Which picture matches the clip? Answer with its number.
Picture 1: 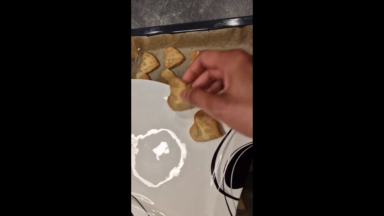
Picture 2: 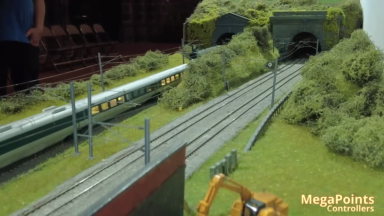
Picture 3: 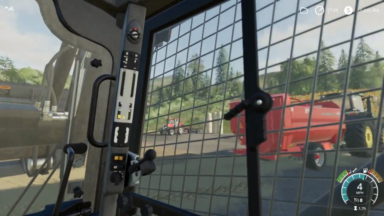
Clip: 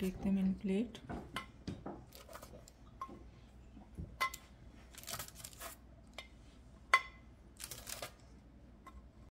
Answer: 1